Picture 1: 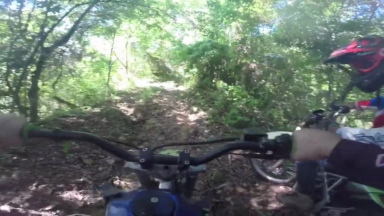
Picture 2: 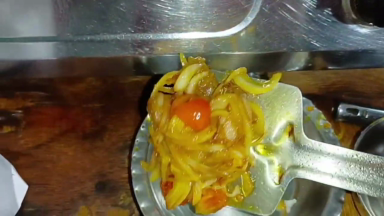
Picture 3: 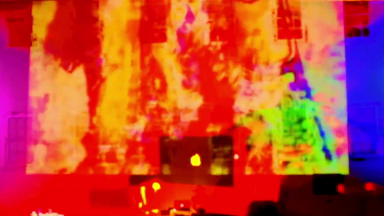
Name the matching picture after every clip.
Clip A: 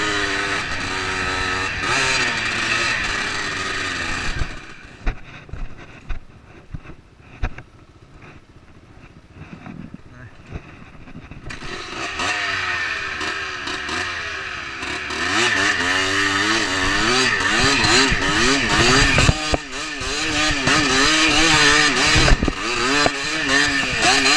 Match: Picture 1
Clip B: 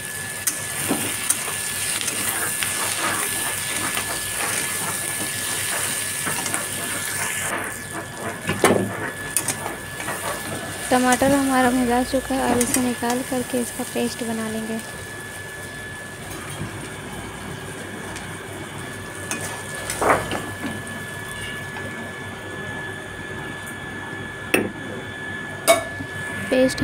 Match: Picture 2